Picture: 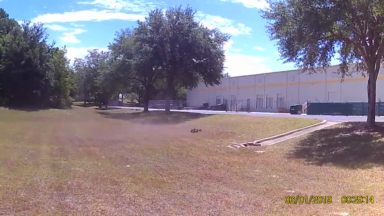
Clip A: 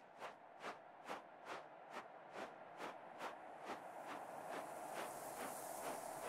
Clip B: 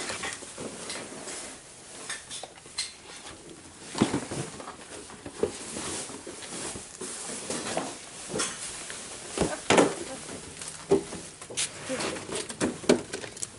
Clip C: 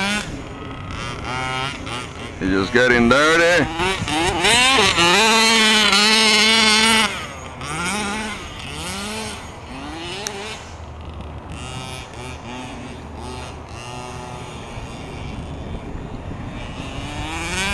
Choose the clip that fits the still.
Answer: C